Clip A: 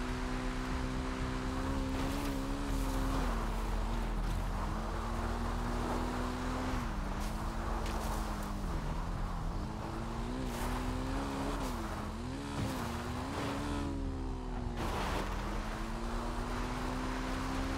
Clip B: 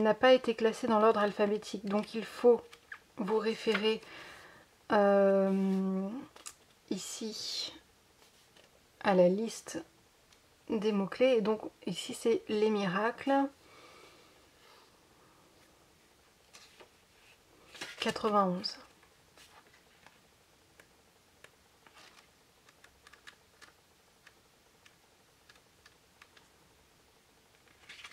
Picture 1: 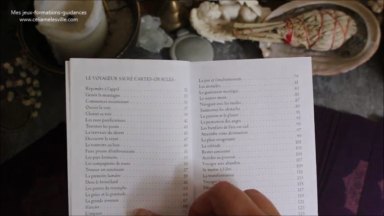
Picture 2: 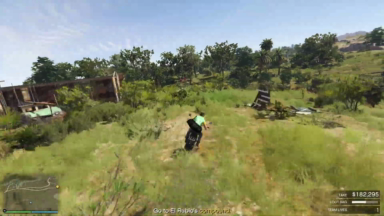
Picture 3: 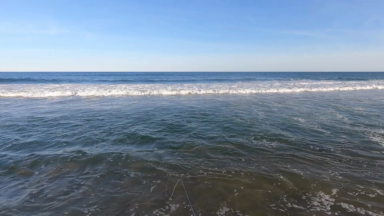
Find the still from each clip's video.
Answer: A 2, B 1